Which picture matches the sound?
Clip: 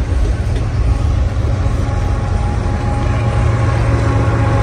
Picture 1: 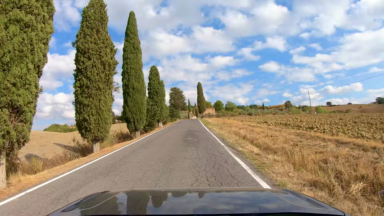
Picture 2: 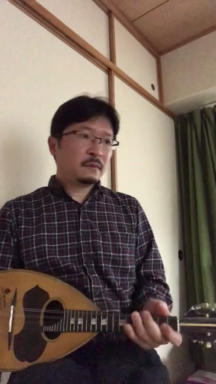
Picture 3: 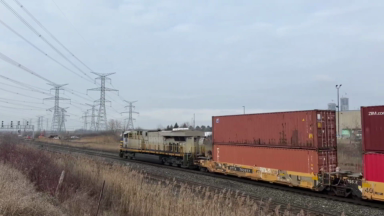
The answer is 3